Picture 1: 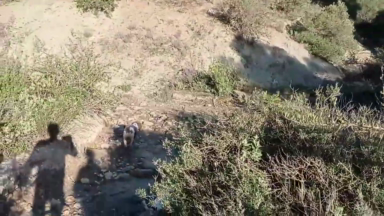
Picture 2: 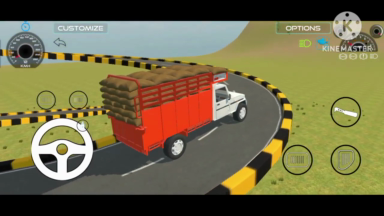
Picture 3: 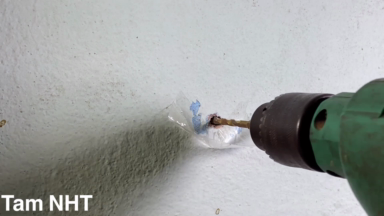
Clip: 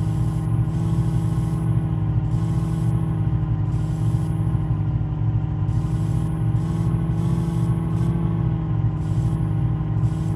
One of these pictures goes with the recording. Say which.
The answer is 2